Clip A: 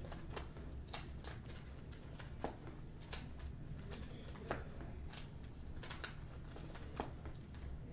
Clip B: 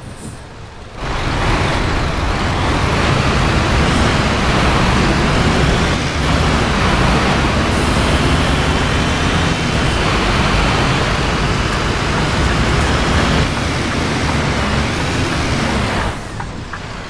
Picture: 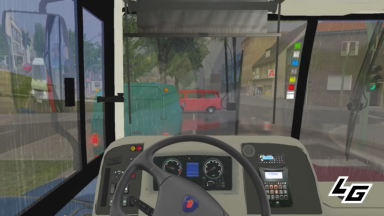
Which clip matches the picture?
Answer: B